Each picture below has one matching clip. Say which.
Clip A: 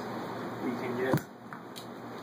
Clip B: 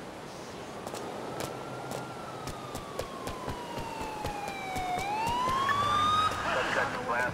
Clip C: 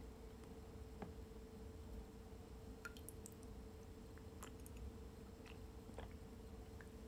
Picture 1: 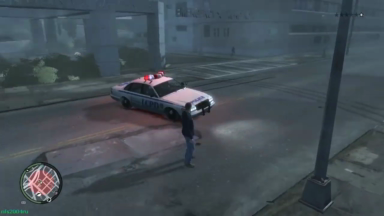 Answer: B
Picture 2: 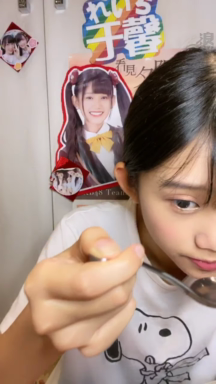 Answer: C